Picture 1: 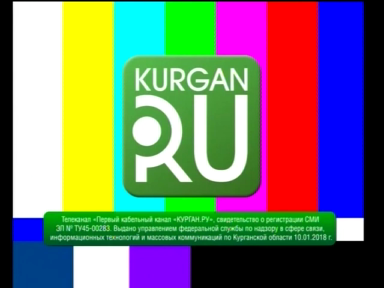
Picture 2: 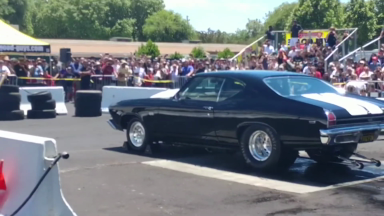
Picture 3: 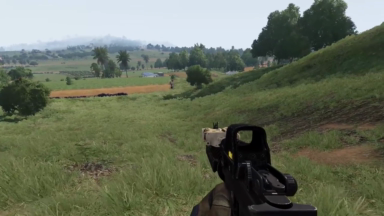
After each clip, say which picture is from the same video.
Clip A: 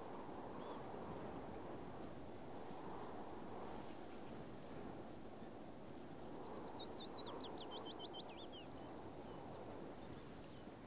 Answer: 3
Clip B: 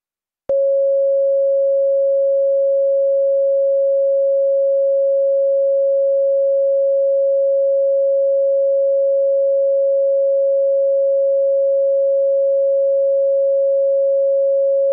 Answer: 1